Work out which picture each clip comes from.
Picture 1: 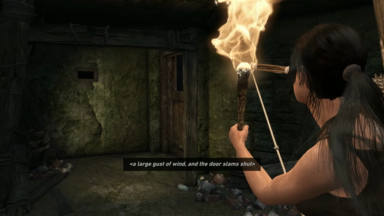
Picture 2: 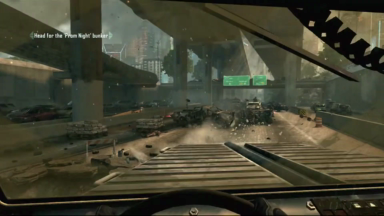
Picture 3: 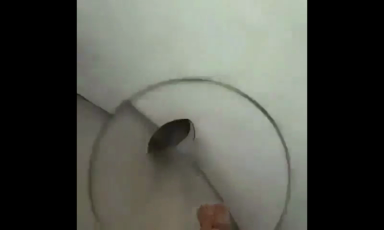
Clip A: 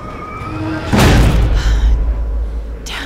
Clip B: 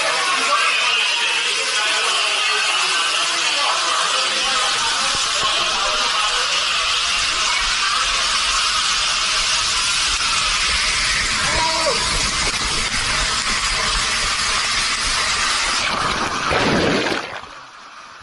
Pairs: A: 1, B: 3